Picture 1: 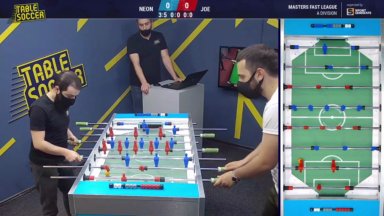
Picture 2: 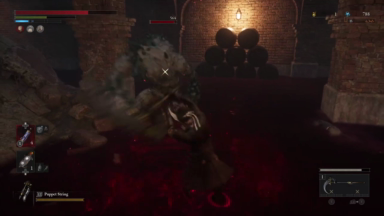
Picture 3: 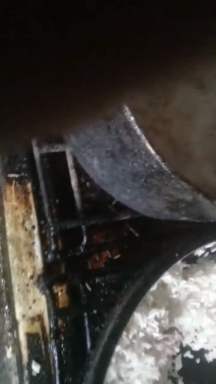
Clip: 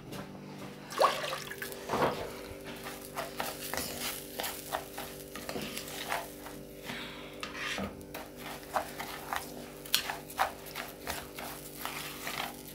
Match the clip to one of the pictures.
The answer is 3